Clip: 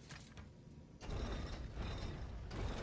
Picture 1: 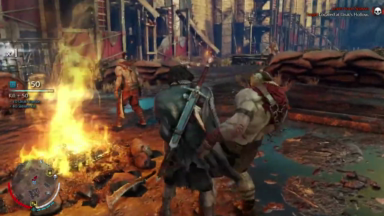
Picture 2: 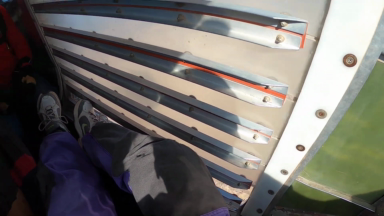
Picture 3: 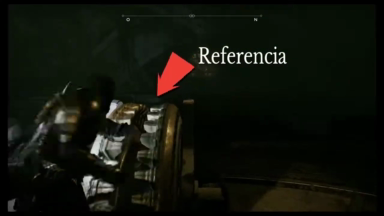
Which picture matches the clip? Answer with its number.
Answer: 3